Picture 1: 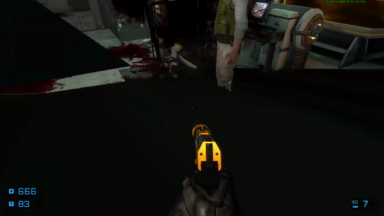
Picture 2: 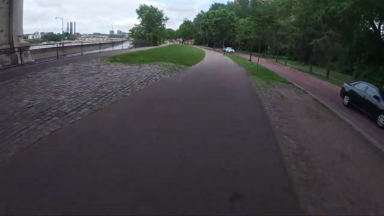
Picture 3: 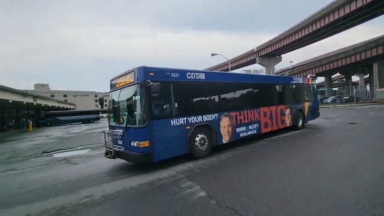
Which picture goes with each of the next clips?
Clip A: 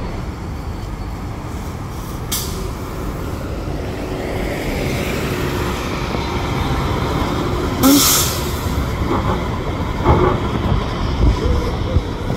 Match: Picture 3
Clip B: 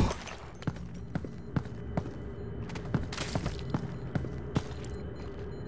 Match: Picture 1